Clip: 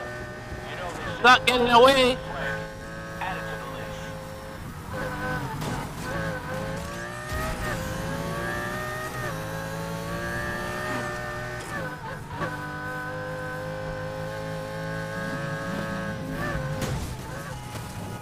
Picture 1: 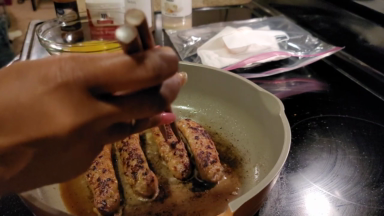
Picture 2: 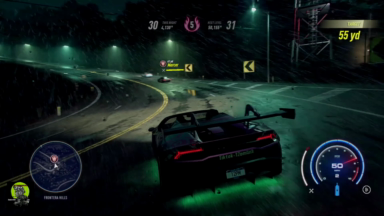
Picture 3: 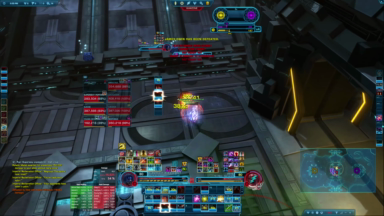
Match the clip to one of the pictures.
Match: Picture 2